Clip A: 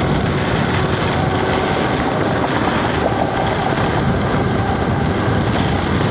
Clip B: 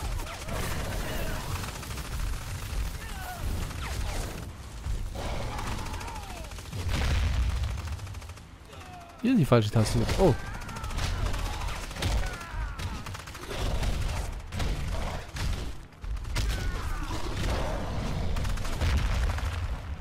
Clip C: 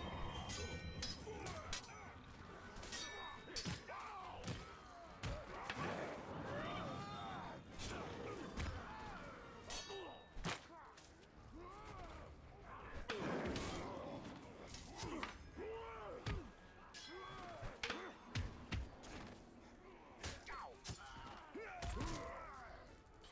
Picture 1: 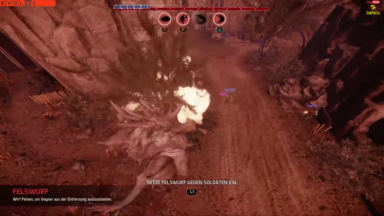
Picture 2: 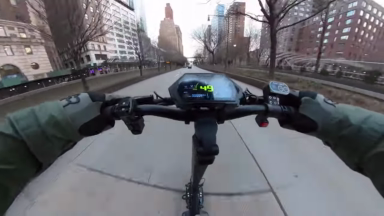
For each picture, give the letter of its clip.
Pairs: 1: B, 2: A